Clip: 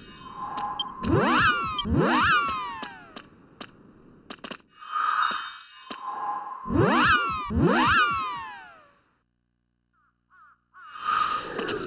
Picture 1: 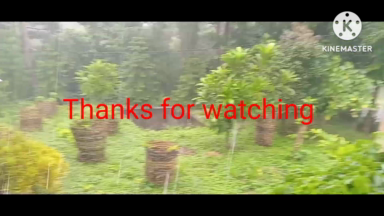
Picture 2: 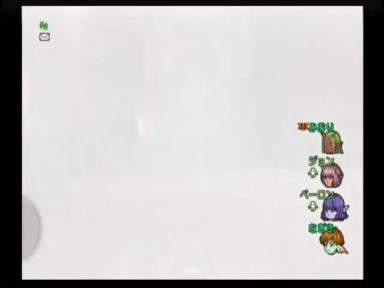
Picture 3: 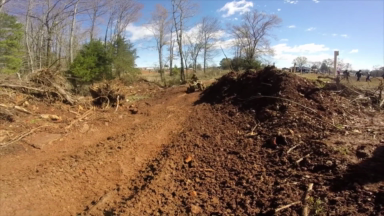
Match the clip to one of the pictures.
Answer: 2